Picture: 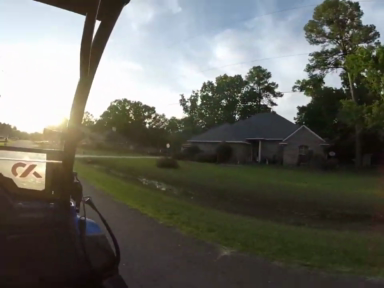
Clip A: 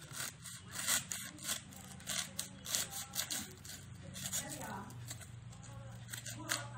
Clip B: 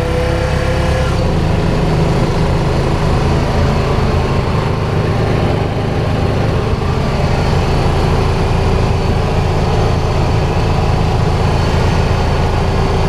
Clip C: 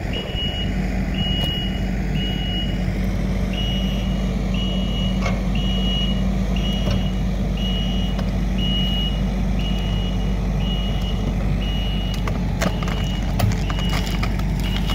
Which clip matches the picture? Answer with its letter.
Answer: B